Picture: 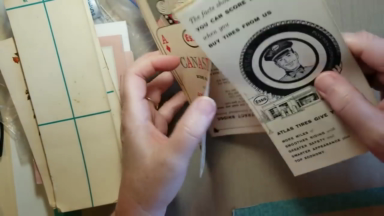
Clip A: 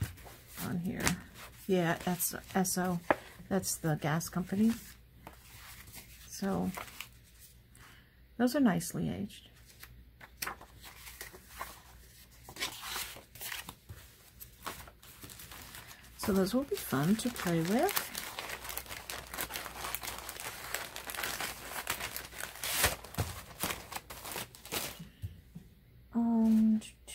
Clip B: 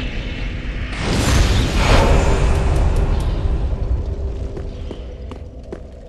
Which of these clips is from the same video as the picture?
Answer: A